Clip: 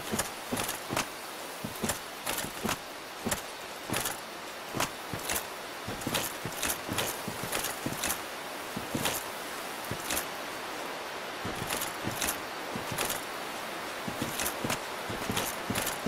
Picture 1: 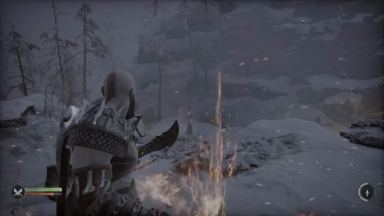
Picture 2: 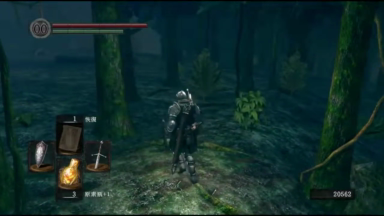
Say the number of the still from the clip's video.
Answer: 2